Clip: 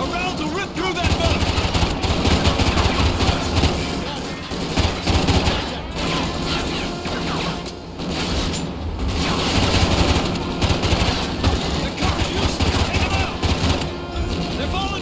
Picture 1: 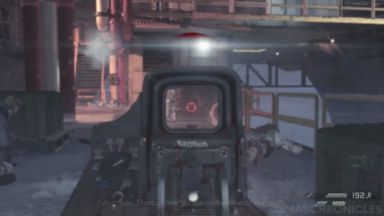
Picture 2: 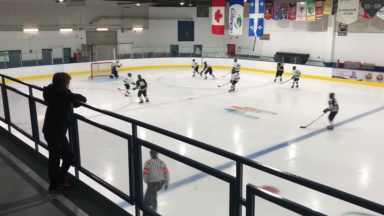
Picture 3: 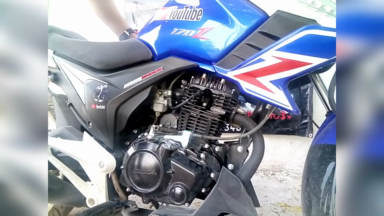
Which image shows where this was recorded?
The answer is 1